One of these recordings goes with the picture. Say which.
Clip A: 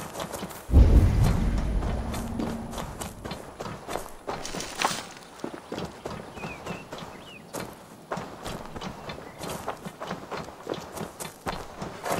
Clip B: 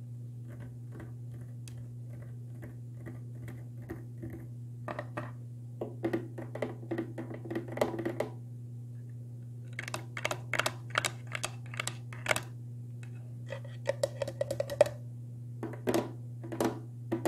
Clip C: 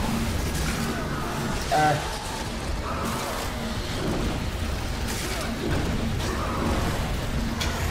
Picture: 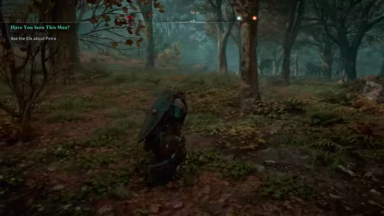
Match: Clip A